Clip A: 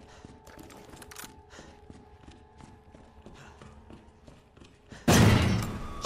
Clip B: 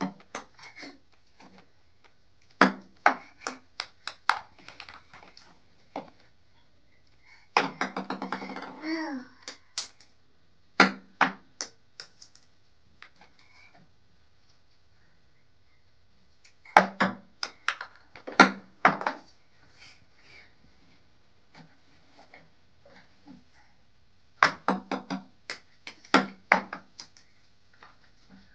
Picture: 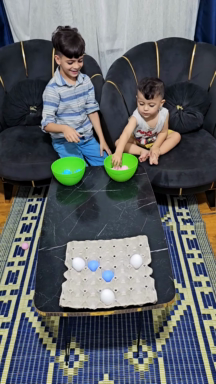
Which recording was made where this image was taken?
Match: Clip B